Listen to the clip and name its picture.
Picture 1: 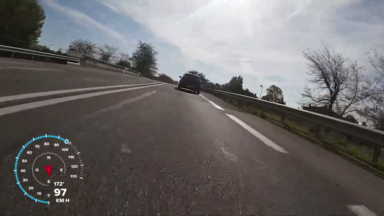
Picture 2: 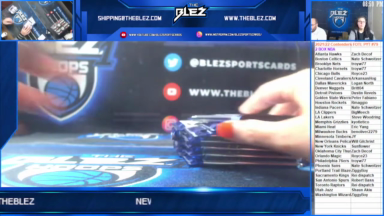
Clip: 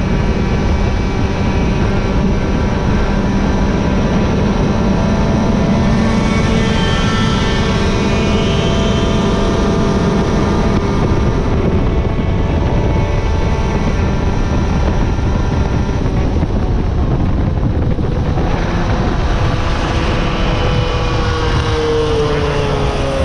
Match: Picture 1